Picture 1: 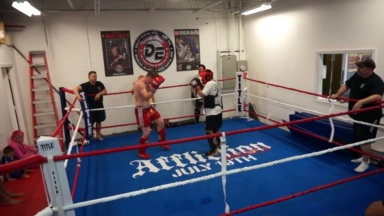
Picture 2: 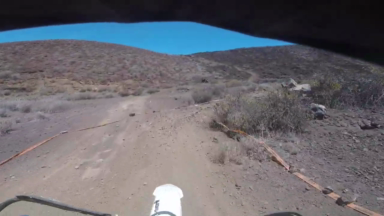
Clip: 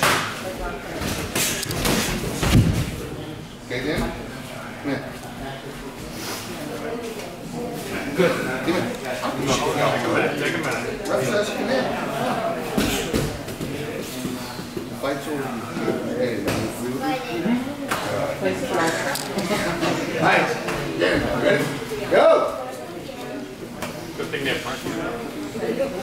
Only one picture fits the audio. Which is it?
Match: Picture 1